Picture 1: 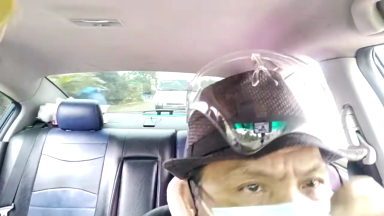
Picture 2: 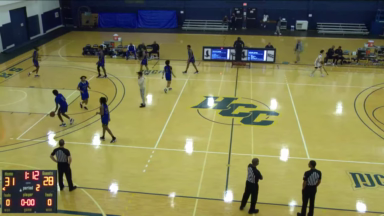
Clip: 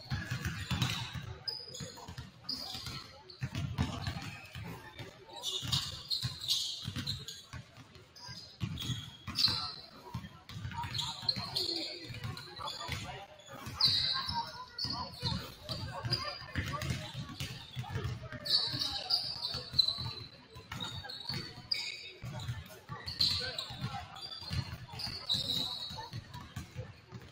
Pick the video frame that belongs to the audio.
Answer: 2